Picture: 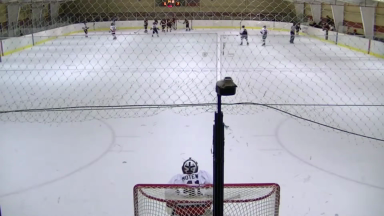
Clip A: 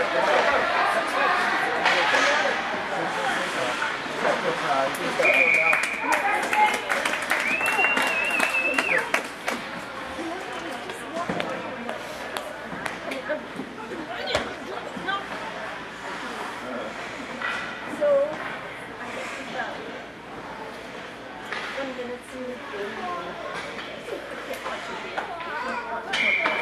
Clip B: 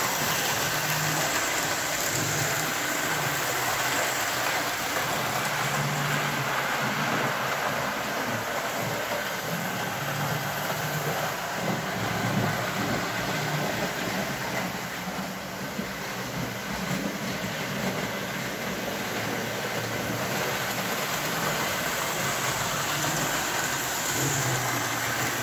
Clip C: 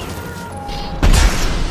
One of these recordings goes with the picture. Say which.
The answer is A